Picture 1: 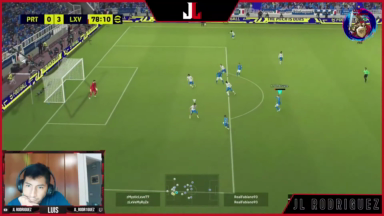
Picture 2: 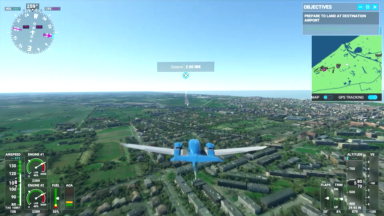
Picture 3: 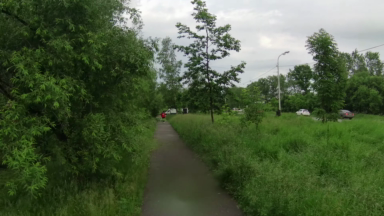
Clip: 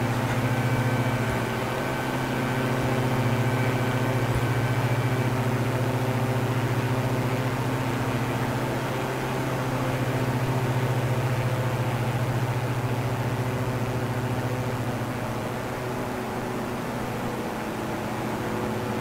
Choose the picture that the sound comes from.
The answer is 2